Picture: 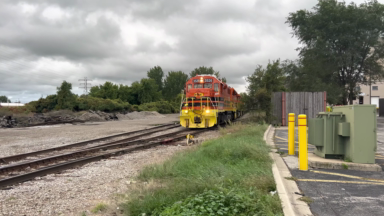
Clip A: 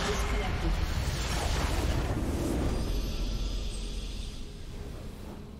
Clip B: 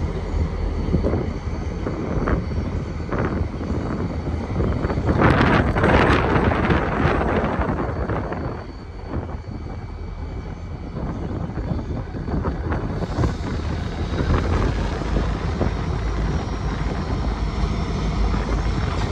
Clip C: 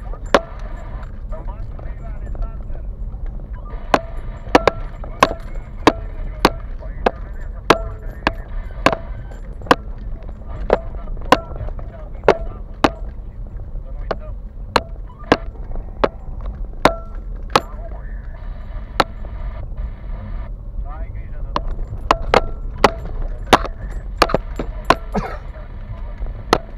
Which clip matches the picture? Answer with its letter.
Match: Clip B